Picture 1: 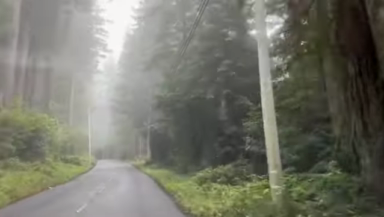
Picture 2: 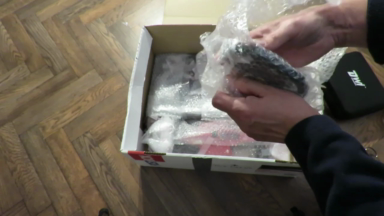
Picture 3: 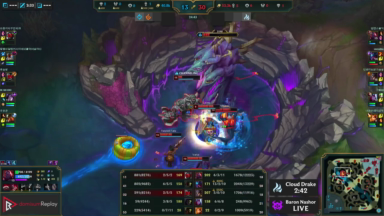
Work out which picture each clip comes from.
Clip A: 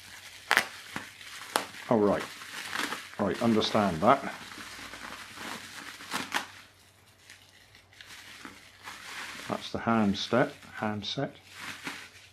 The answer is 2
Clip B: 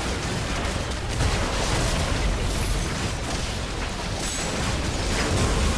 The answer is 3